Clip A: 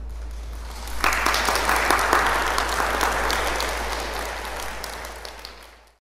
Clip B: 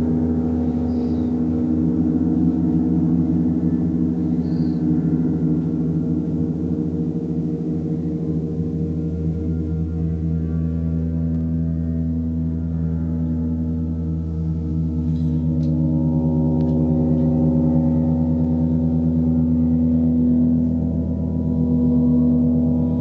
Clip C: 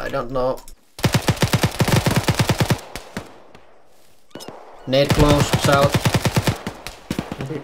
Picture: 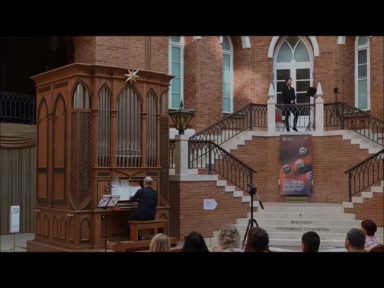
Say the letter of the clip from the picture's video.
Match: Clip A